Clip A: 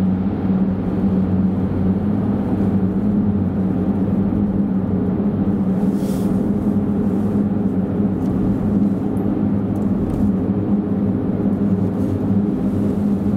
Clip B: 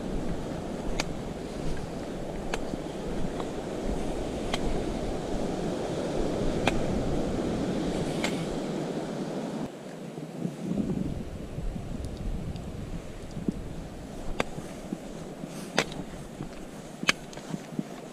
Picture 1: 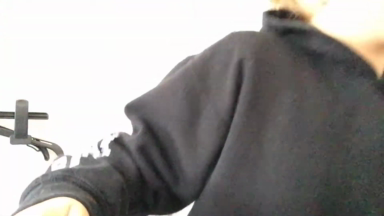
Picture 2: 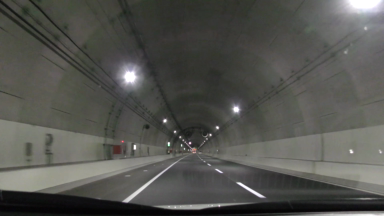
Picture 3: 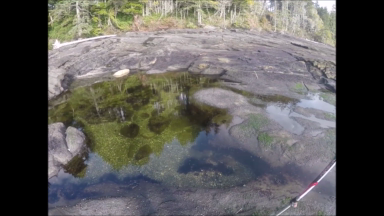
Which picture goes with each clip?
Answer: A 2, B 3